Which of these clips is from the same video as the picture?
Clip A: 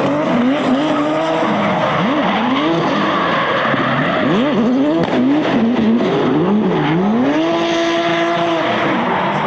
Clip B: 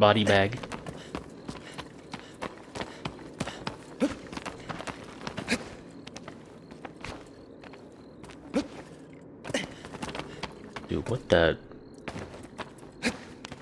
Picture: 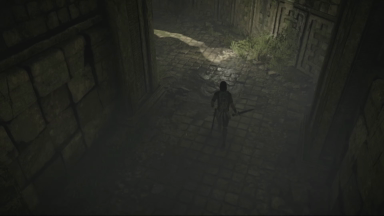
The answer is B